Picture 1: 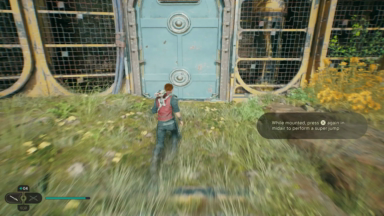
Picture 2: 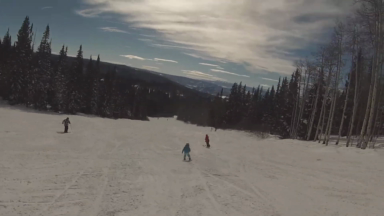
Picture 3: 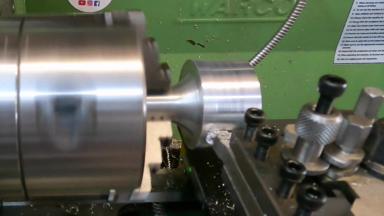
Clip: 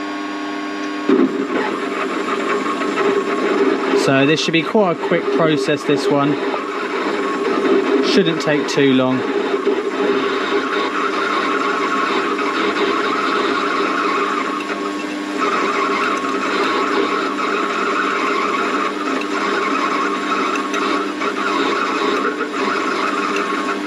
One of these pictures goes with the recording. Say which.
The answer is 3